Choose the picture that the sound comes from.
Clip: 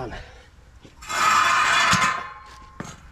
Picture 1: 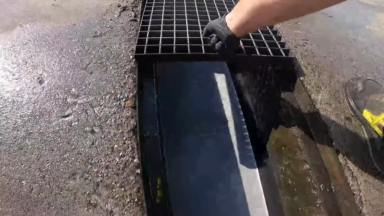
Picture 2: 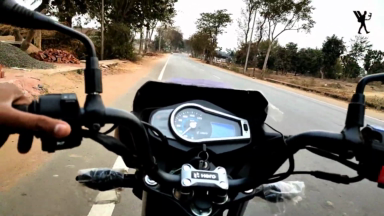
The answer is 1